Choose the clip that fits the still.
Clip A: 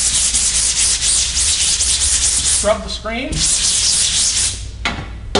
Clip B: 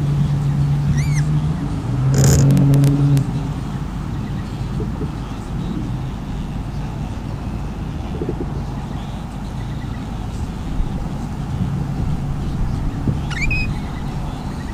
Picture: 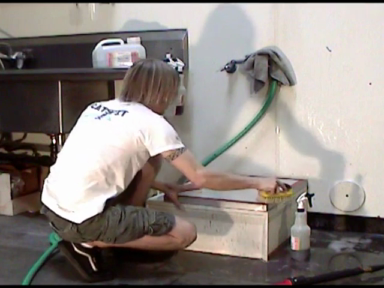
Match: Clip A